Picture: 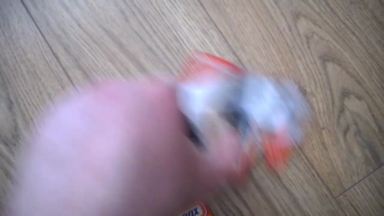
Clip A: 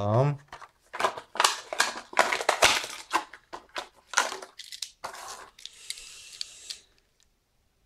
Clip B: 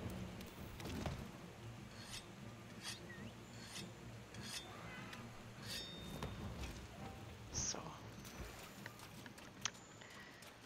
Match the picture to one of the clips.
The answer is A